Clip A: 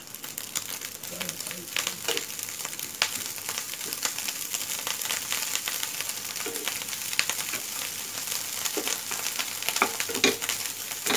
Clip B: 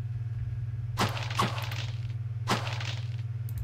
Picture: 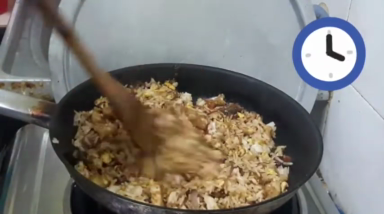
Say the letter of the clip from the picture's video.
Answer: A